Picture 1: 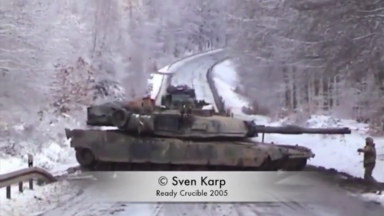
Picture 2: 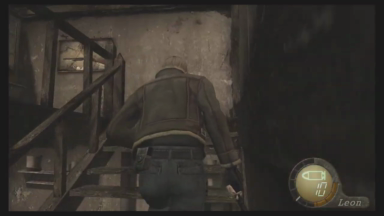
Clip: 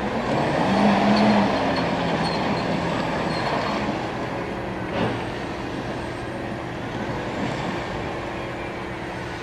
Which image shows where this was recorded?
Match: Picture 1